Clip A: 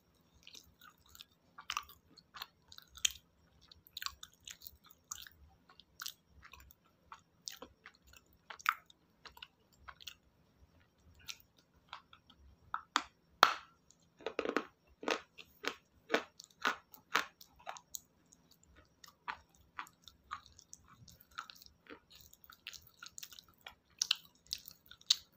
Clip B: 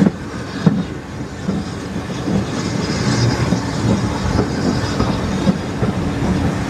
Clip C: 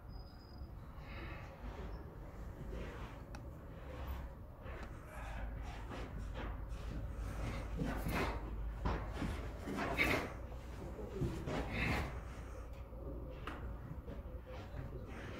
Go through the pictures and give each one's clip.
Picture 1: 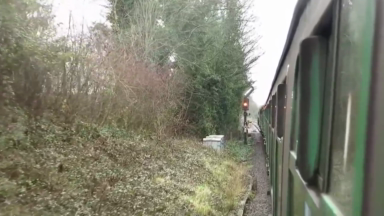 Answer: B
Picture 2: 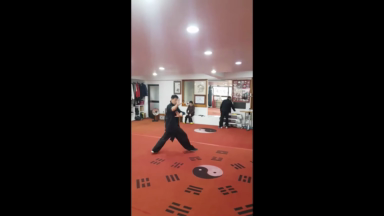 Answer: C